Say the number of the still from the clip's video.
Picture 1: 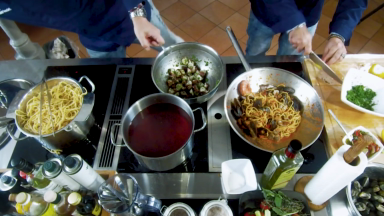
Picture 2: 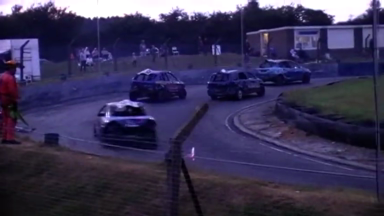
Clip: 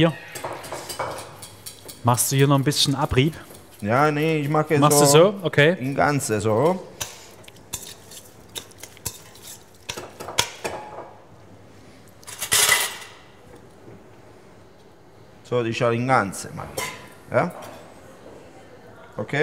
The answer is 1